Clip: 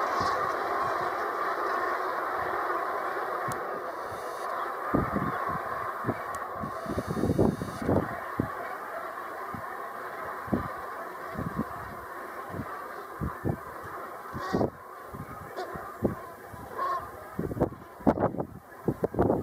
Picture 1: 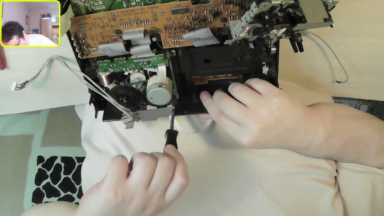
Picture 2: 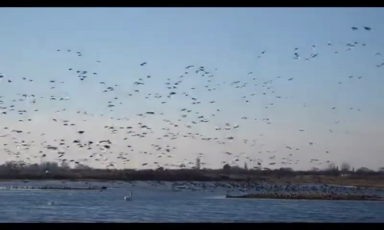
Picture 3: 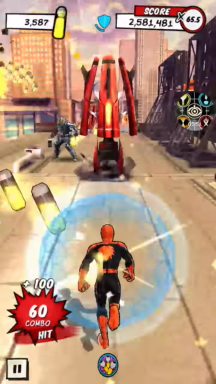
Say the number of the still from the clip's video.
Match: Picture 2